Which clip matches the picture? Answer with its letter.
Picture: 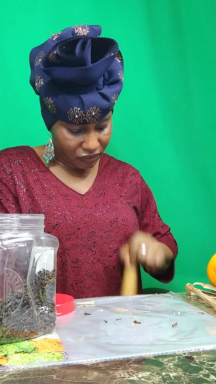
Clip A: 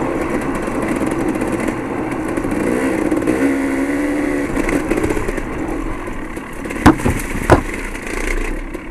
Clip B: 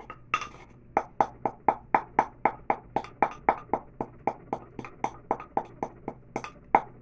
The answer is B